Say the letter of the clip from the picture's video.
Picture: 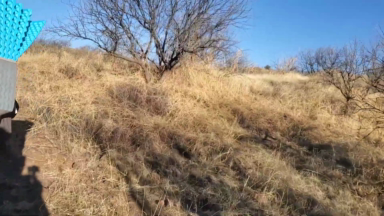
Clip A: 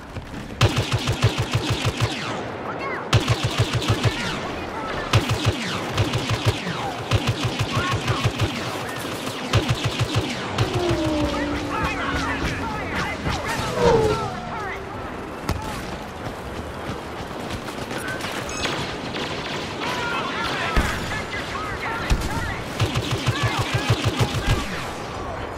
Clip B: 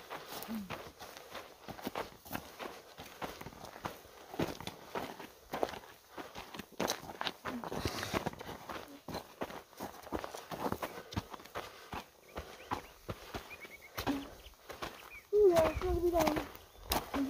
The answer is B